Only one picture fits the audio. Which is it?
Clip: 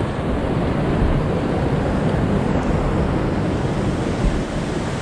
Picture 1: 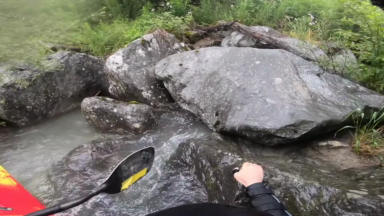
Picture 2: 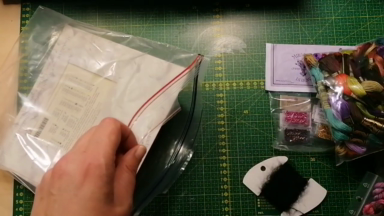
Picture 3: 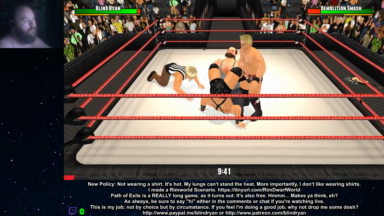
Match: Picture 1